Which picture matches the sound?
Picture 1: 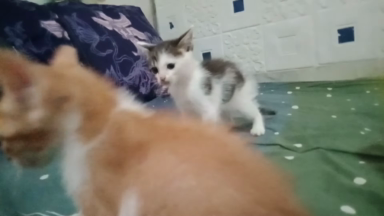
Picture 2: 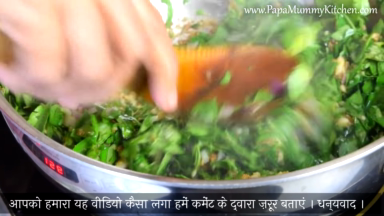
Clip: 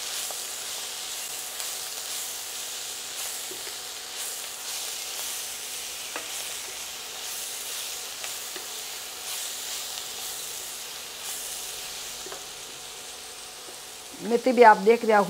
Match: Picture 2